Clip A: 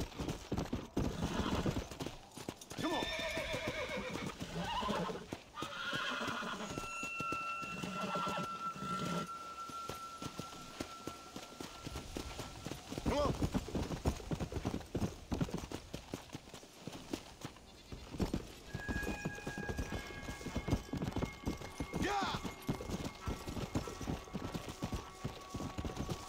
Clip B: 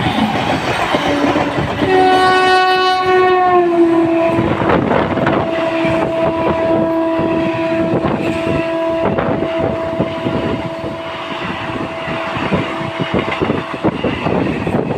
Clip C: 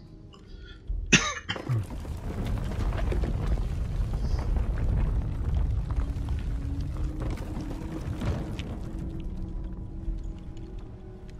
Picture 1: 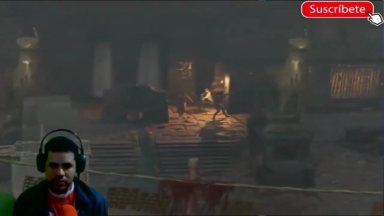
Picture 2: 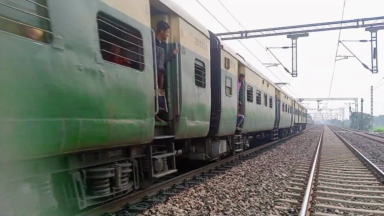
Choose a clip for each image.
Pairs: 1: C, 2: B